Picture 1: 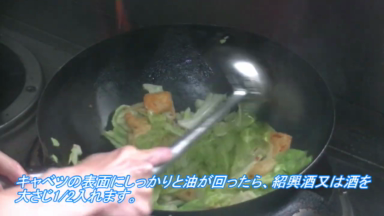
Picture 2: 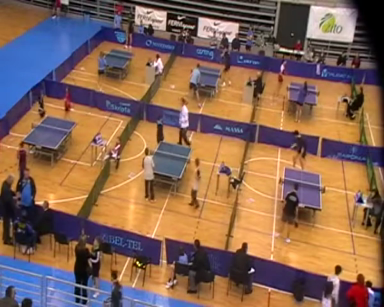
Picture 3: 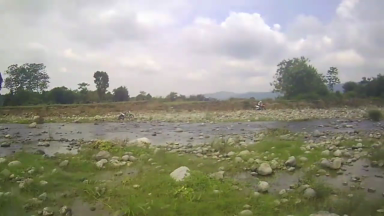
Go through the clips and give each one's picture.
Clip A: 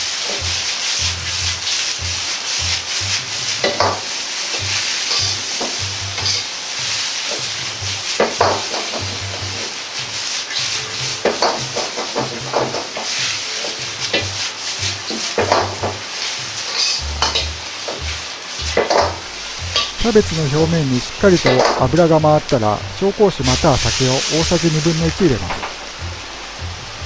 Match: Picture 1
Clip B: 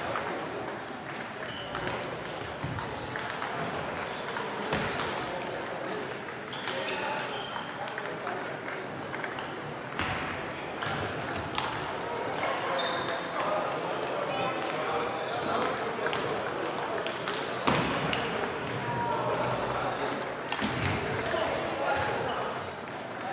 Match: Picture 2